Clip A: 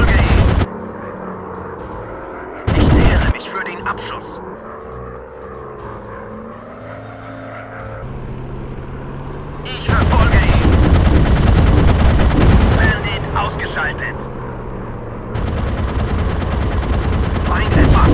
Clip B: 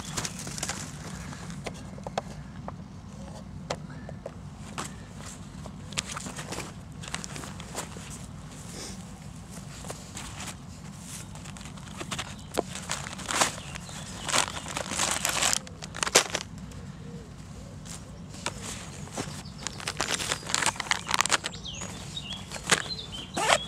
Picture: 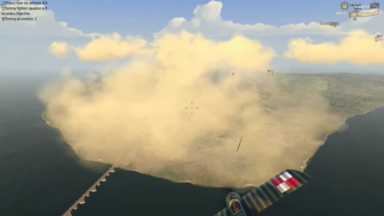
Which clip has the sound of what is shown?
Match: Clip A